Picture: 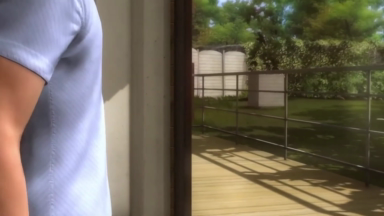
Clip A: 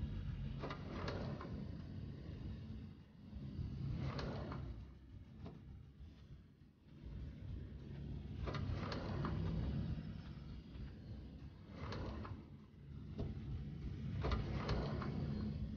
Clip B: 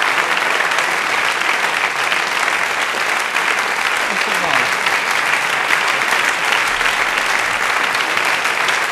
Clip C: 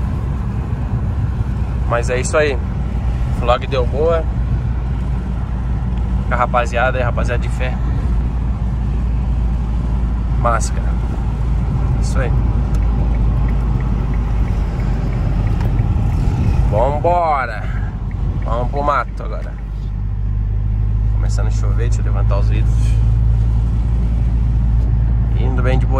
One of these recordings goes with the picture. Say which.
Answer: A